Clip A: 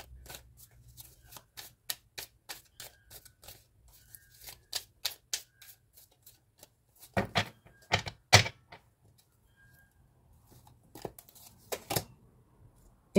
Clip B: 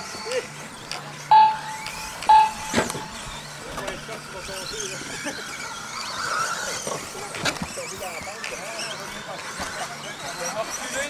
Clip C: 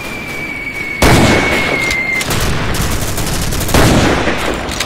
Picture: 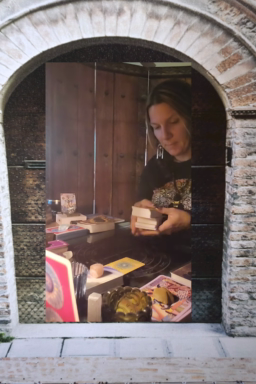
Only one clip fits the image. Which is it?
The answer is A